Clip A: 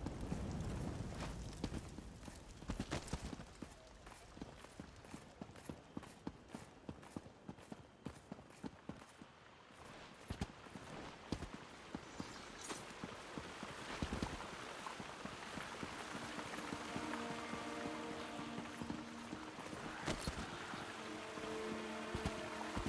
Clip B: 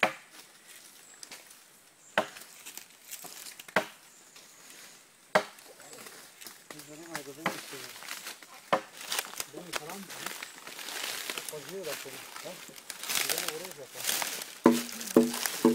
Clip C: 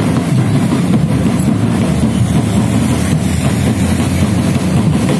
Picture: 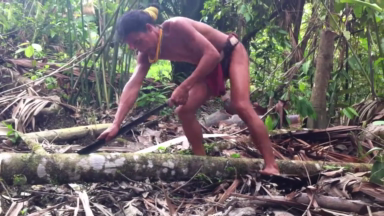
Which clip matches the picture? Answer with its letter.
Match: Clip B